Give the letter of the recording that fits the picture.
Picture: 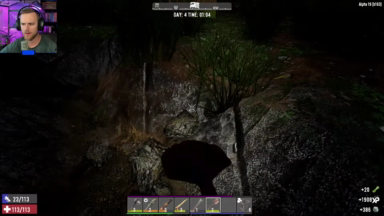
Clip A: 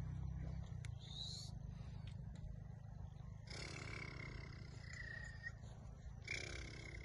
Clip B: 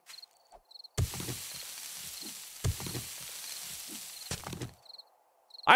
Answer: B